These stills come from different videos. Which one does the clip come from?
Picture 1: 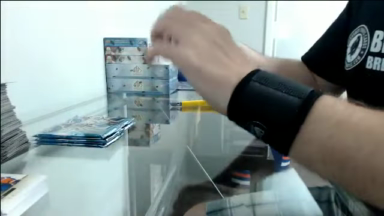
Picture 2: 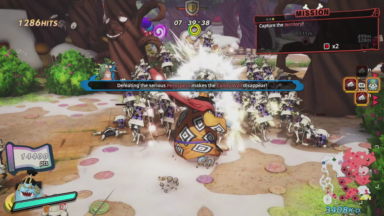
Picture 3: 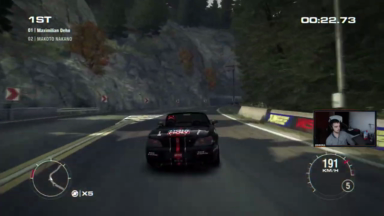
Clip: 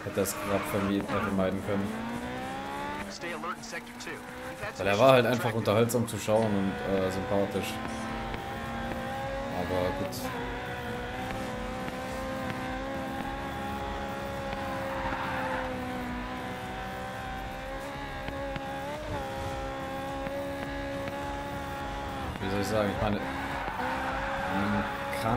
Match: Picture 3